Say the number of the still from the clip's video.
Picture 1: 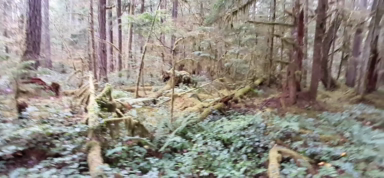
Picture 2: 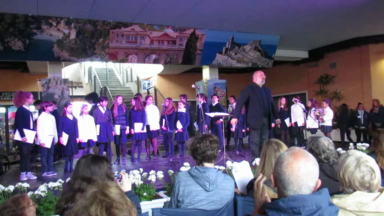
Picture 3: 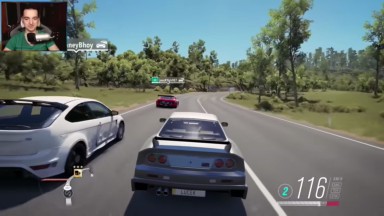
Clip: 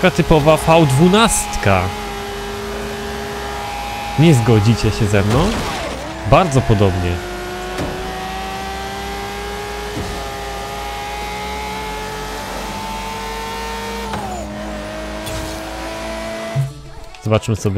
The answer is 3